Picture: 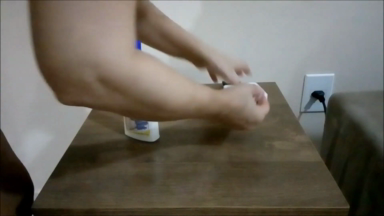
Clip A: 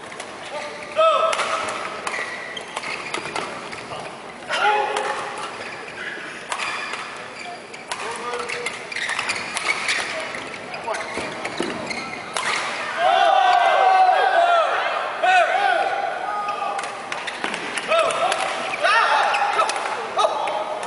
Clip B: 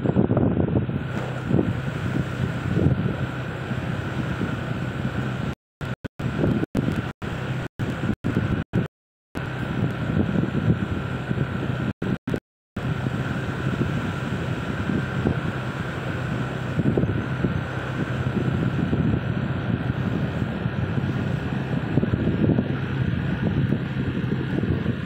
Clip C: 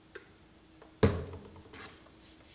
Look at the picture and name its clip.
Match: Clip C